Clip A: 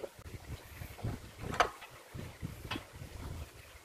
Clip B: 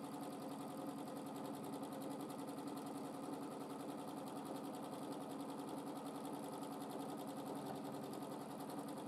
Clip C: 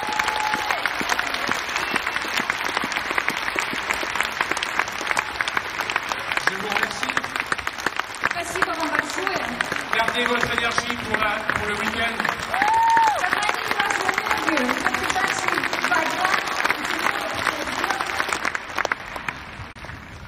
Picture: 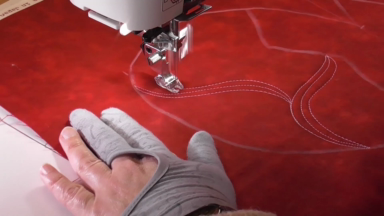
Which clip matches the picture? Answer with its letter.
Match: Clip B